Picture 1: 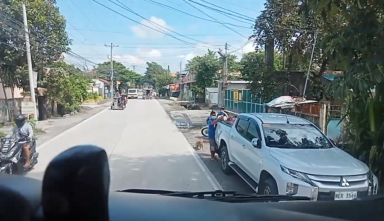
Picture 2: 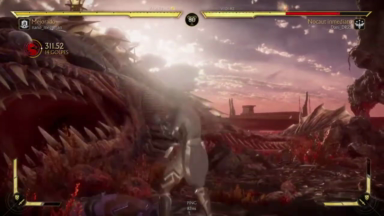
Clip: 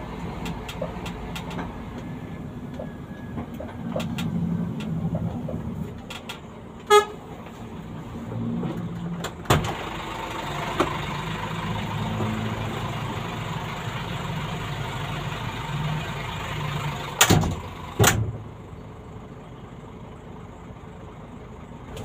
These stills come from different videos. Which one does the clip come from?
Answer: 1